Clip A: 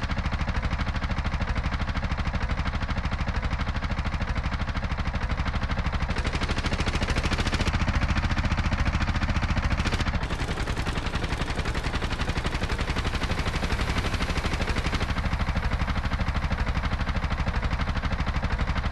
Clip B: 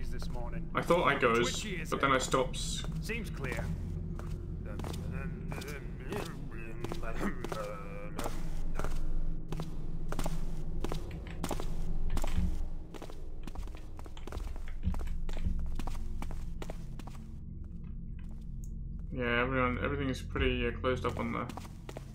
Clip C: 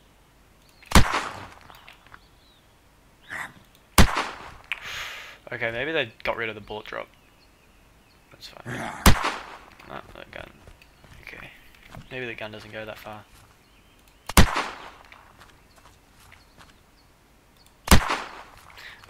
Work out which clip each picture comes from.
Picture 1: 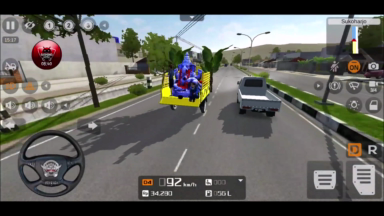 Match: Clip A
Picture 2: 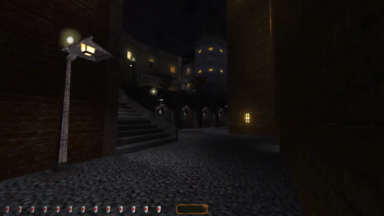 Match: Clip B